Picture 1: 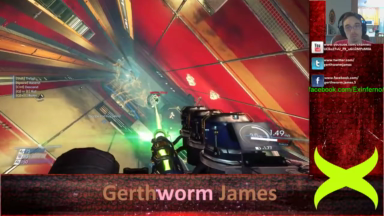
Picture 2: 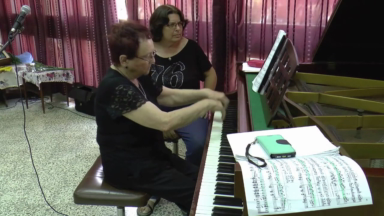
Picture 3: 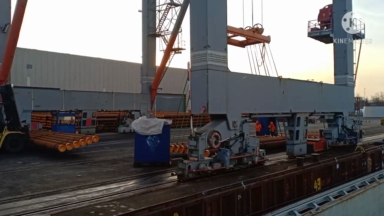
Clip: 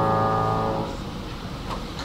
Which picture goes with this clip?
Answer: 2